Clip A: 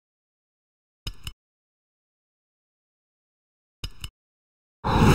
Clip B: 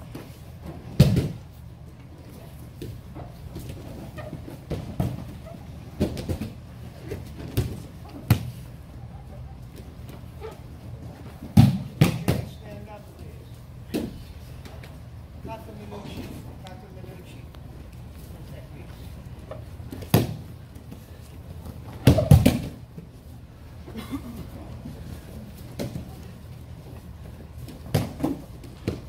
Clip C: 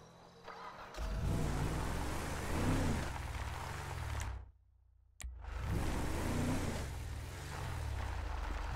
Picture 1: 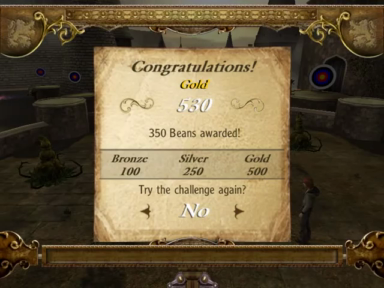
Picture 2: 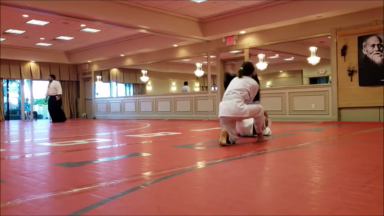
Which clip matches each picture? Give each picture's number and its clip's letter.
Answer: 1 A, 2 B